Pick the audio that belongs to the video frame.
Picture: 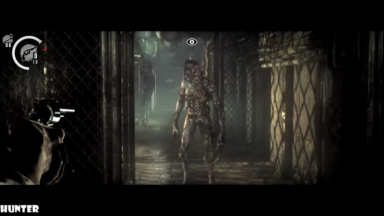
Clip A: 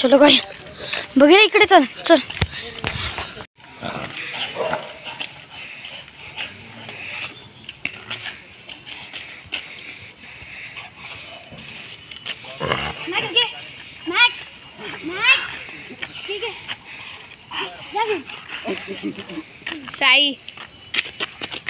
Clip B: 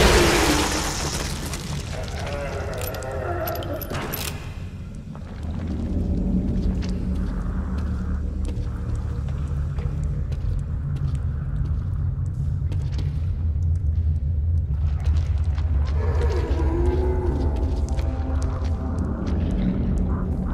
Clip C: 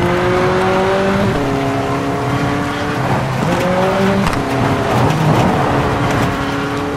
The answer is B